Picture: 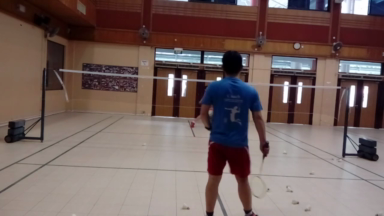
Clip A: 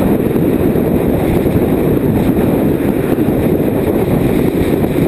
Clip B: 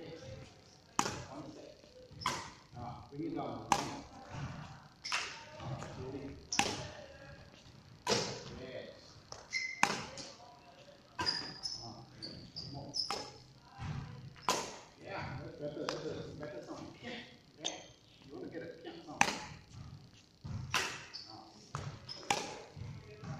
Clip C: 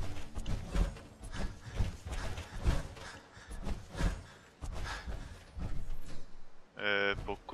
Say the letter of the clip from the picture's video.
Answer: B